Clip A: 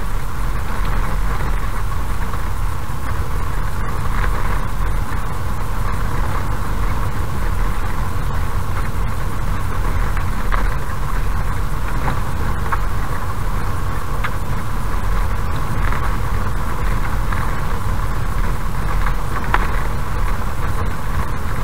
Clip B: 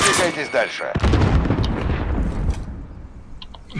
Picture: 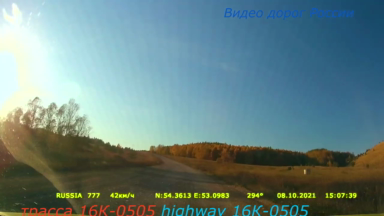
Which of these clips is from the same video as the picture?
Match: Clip A